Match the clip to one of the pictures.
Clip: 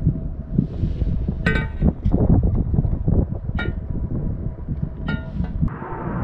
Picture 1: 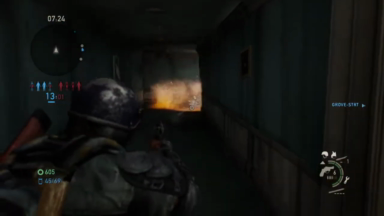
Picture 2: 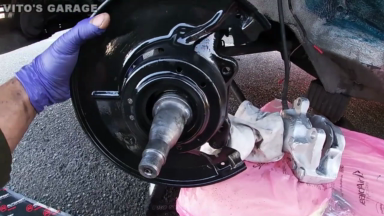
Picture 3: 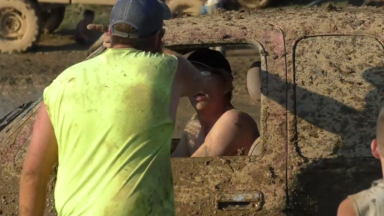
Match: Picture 2